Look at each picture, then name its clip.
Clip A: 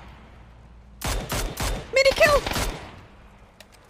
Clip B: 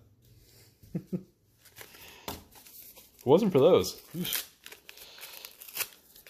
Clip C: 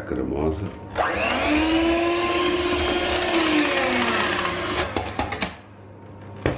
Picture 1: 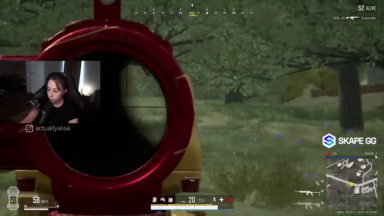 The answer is A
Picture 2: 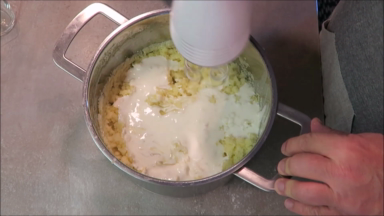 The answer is C